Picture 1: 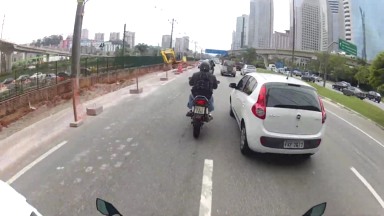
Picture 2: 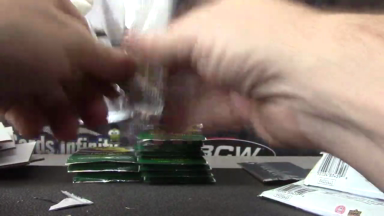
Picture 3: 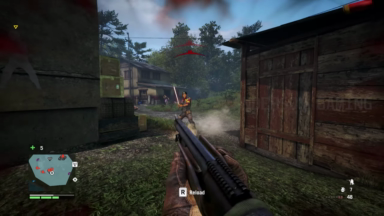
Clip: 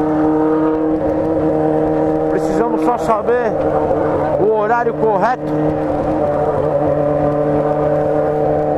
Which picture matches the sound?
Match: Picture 1